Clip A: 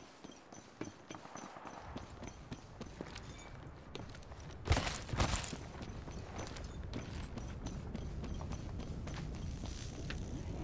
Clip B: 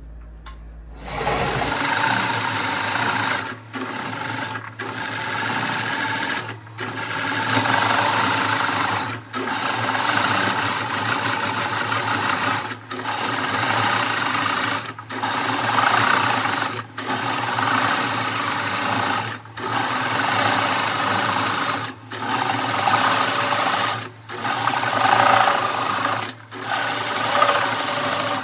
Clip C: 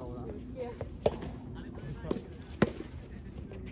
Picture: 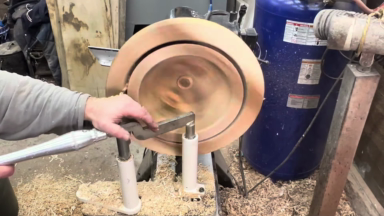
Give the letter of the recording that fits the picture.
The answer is B